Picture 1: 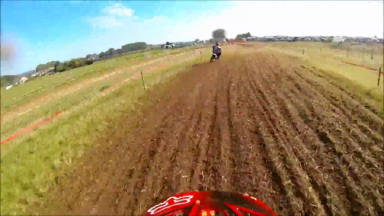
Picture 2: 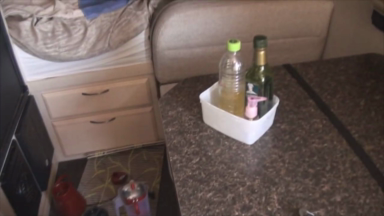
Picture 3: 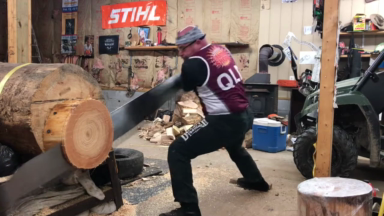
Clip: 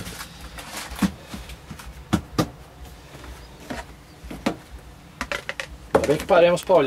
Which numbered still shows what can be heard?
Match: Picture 2